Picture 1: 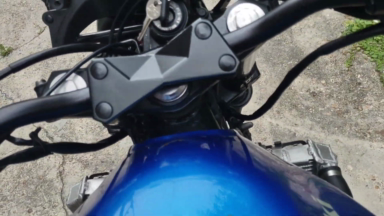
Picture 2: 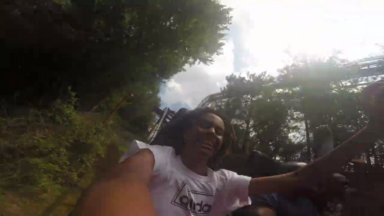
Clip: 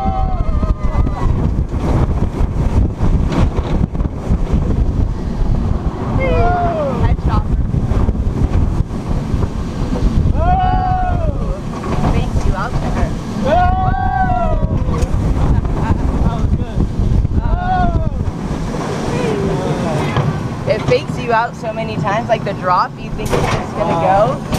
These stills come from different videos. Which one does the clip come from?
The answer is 2